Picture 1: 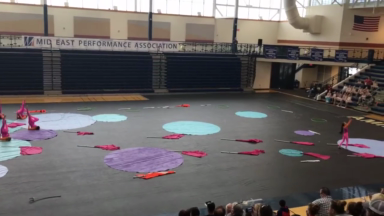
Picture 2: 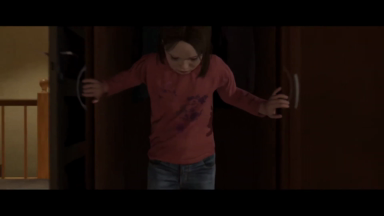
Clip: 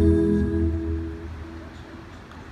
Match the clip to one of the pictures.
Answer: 1